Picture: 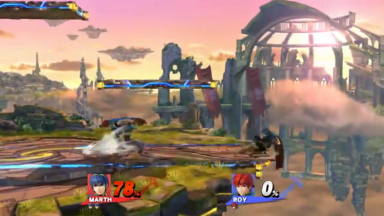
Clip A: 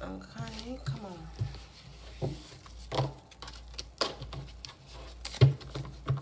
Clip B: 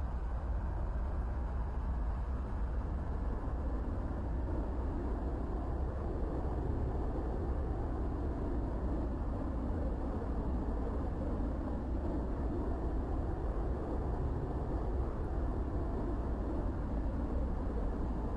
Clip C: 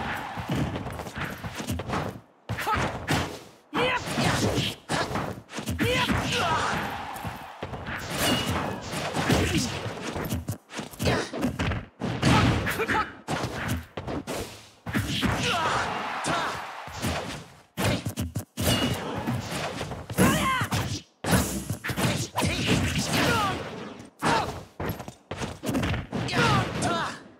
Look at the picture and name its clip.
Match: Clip C